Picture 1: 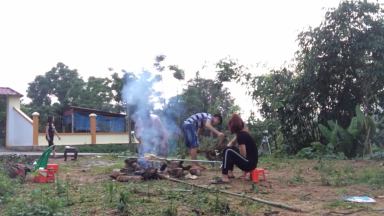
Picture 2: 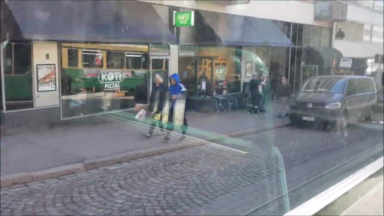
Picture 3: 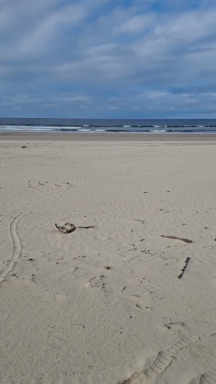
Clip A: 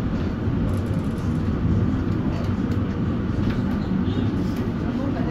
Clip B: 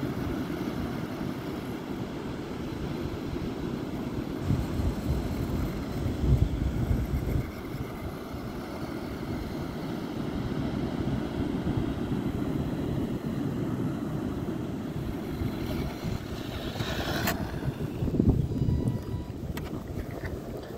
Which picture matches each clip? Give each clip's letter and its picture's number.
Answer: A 2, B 3